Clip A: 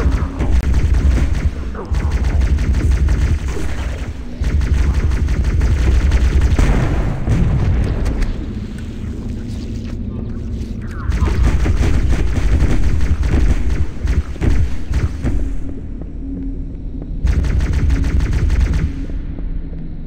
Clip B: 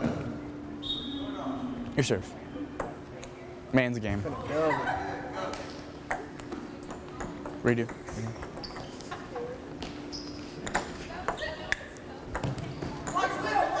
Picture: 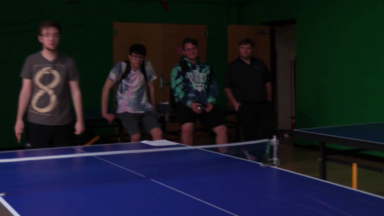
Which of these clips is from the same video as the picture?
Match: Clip B